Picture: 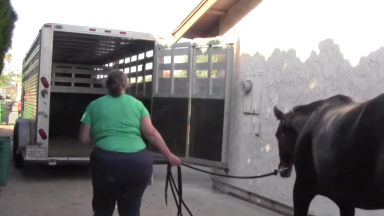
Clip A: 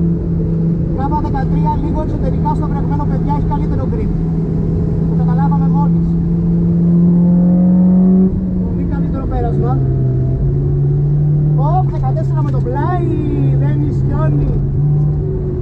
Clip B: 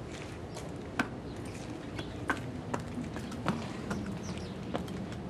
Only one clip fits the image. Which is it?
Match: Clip B